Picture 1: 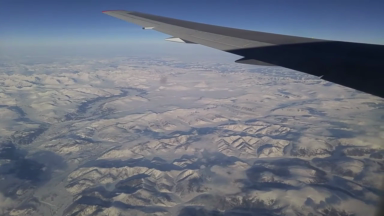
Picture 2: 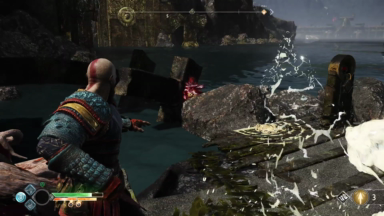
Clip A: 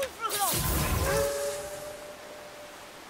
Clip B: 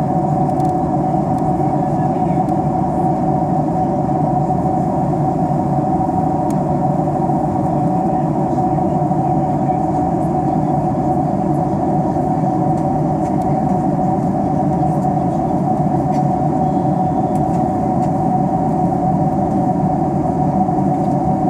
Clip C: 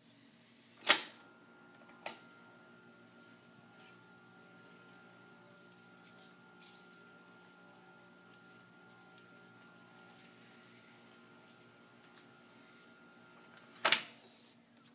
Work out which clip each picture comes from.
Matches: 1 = B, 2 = A